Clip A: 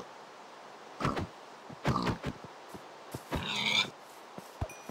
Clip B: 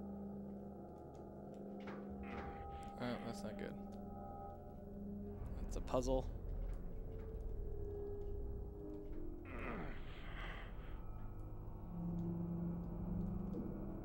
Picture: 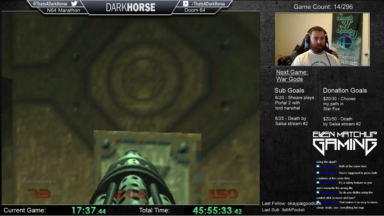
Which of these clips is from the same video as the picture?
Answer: B